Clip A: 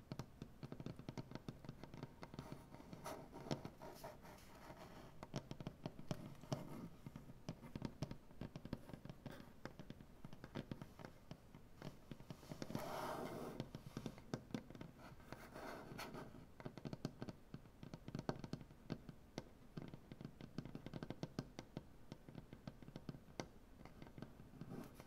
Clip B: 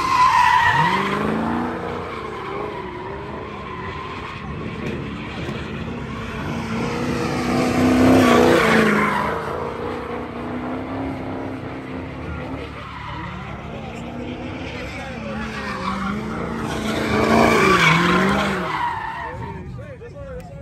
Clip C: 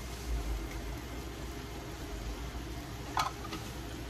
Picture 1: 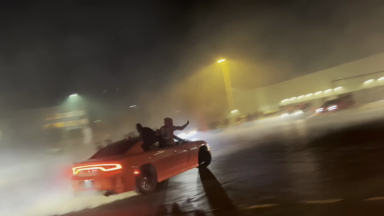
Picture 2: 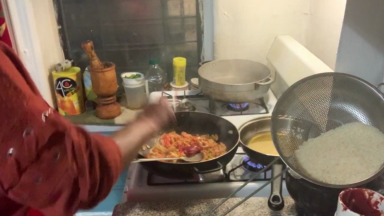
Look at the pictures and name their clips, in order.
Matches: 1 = B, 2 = C